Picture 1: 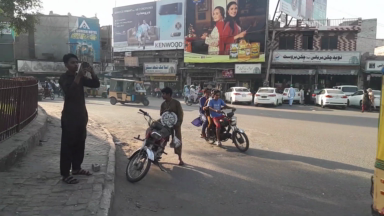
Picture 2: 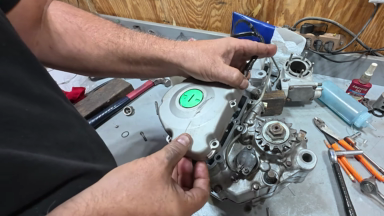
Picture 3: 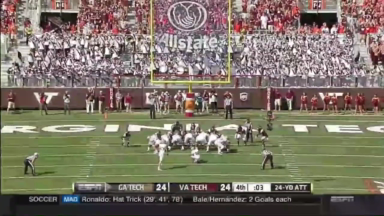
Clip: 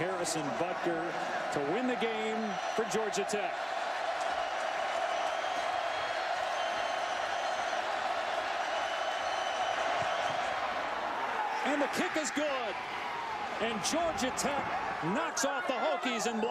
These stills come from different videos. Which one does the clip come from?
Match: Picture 3